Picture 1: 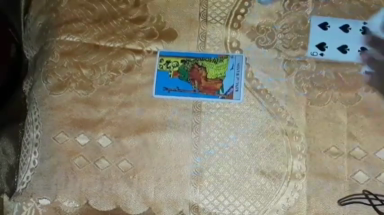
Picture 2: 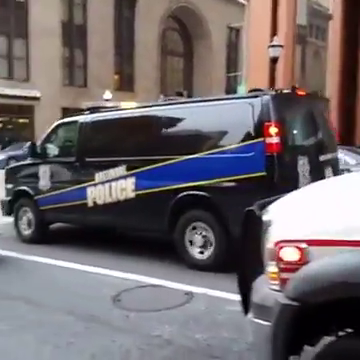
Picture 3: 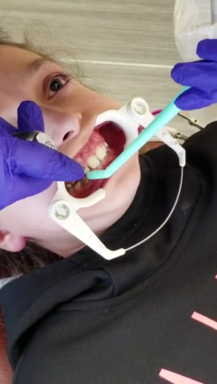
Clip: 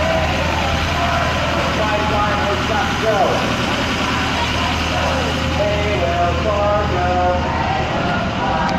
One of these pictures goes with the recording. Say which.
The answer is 2